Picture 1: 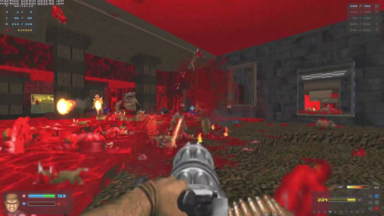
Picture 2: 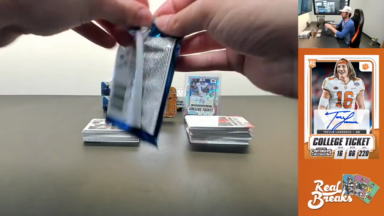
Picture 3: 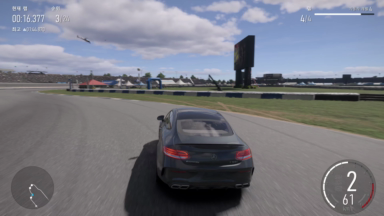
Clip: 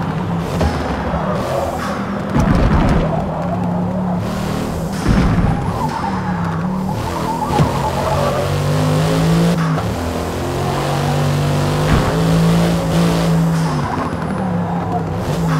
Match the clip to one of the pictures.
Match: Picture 3